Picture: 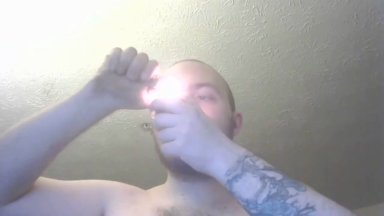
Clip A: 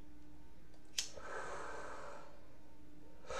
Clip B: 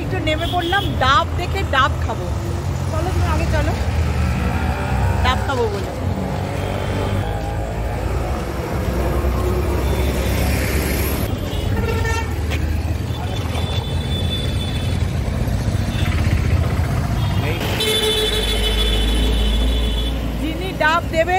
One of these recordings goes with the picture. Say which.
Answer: A